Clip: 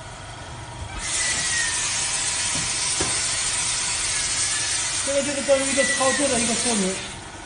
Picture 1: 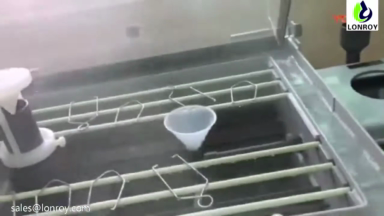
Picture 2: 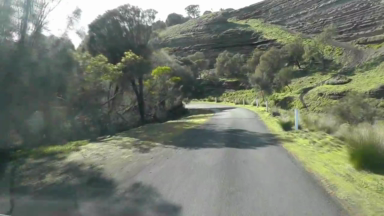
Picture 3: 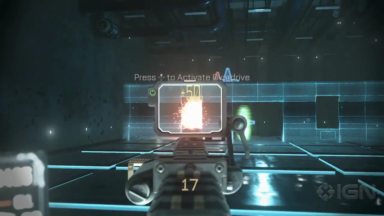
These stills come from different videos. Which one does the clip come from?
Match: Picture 1